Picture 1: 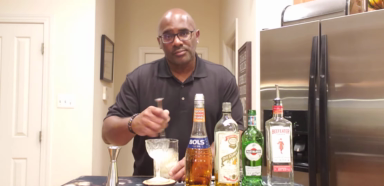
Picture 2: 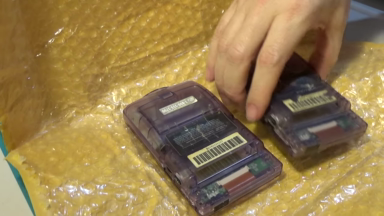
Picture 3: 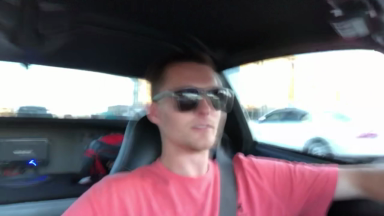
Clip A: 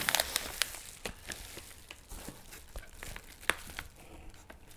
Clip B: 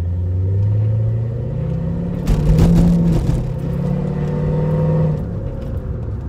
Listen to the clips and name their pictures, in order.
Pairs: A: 2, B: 3